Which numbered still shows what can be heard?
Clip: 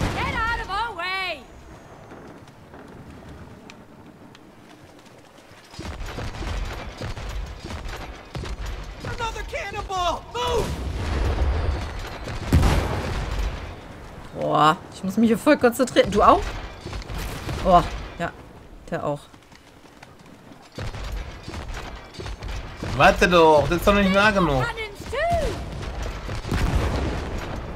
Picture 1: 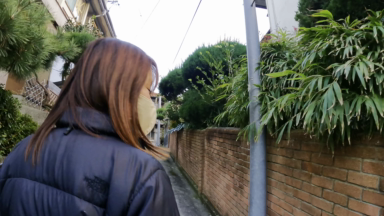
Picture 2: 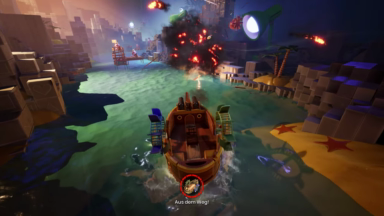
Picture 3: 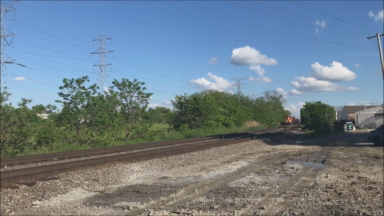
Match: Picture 2